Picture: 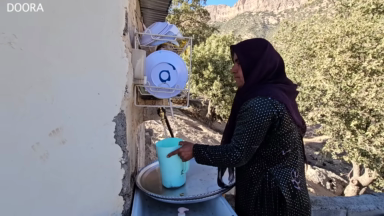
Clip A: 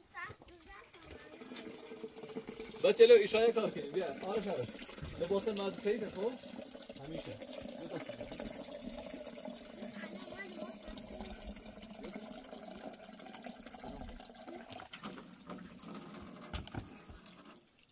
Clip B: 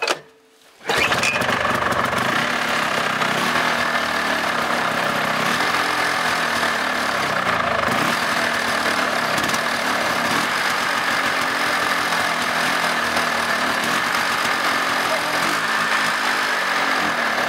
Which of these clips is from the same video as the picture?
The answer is A